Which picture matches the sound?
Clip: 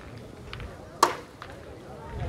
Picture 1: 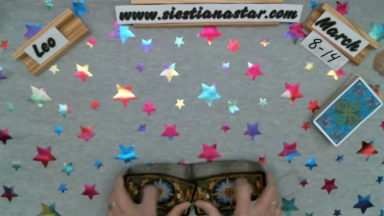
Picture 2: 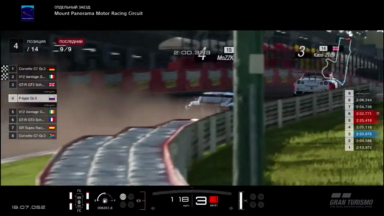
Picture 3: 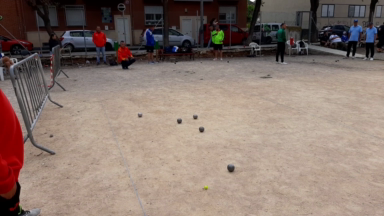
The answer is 3